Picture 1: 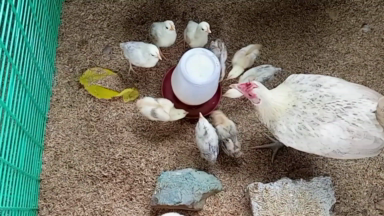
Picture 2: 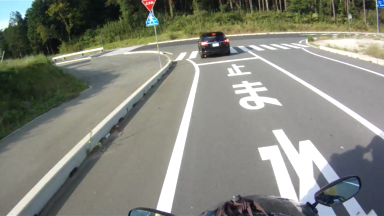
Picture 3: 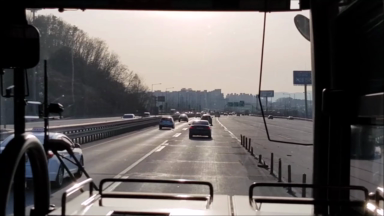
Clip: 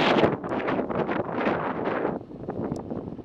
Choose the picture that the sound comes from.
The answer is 2